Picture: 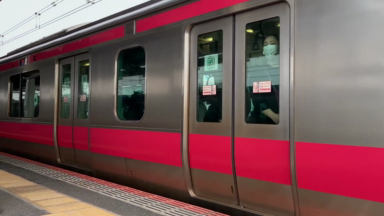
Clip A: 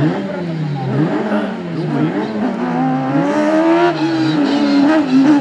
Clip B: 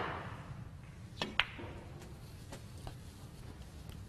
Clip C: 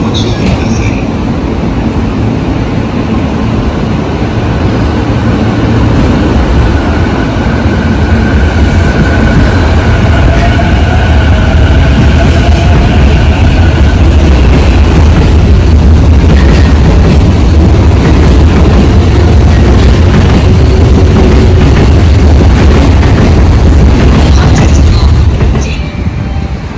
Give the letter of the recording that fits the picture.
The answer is C